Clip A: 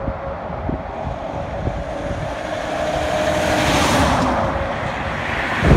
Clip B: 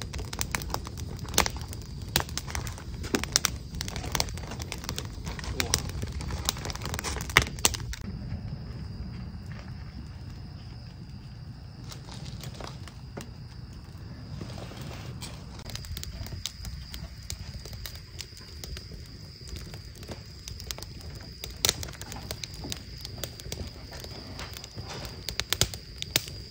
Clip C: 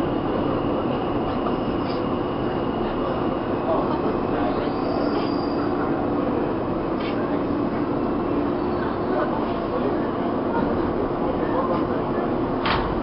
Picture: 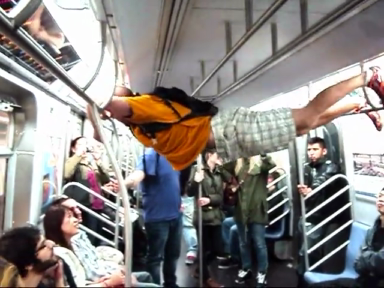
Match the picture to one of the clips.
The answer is C